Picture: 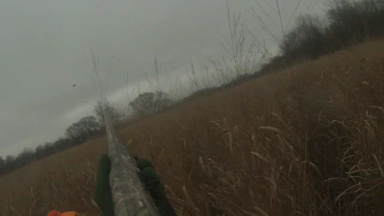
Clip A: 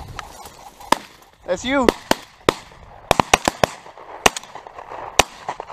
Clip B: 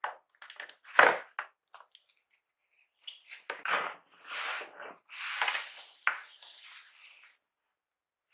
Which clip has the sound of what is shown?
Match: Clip A